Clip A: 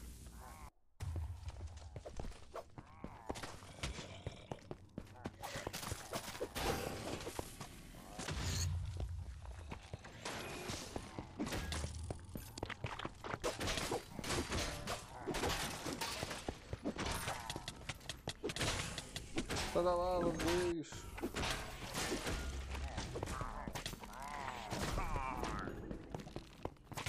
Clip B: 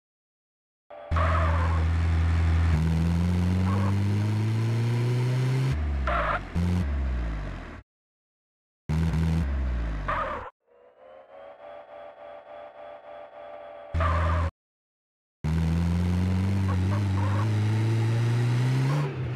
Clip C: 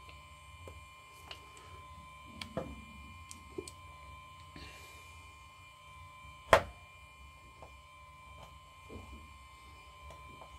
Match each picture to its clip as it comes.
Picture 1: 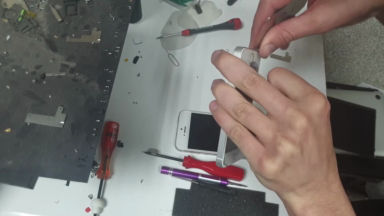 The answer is C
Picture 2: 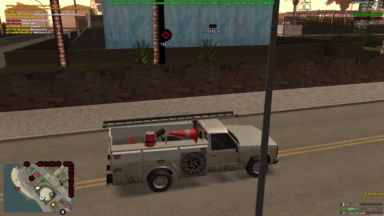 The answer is B